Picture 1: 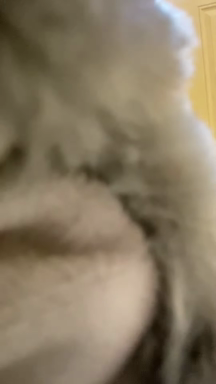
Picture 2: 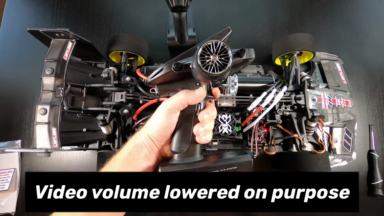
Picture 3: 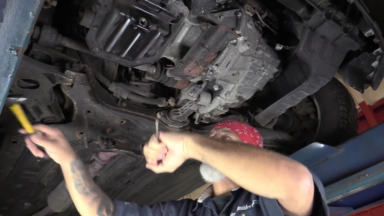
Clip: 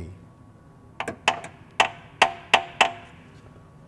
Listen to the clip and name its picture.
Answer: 3